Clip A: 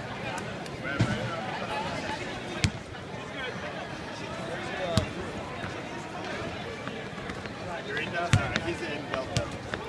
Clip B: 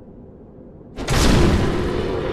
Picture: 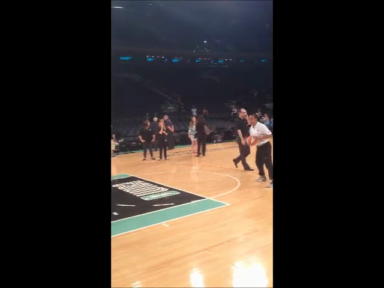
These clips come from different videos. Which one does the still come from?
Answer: A